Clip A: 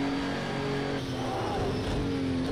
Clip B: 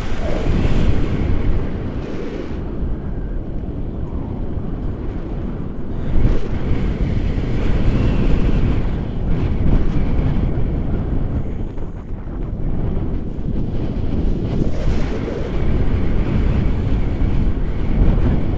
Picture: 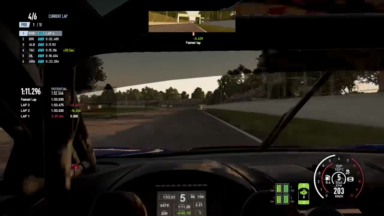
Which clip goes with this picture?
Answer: A